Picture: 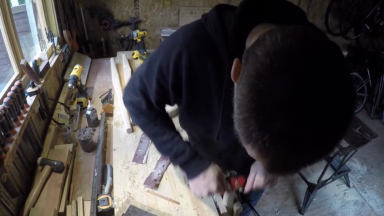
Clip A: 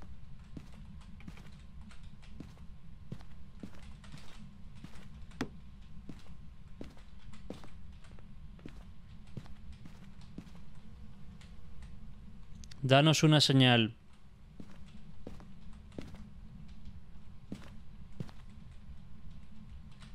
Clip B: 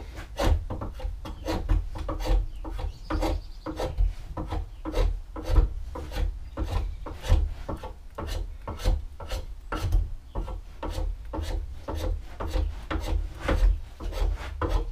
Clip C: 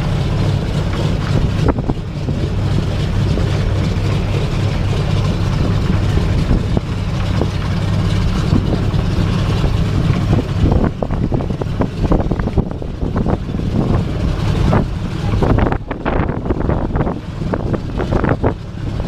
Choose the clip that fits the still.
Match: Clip B